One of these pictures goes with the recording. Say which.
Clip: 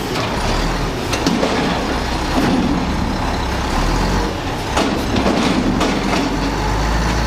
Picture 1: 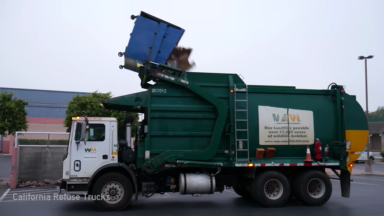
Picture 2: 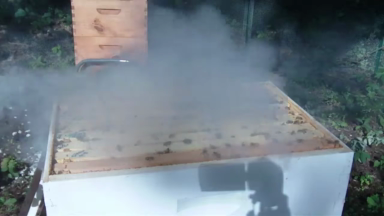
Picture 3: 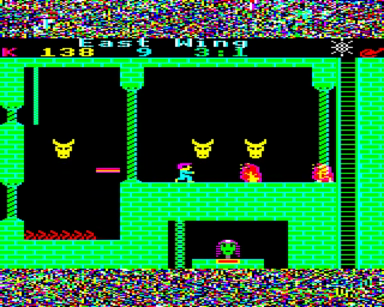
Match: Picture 1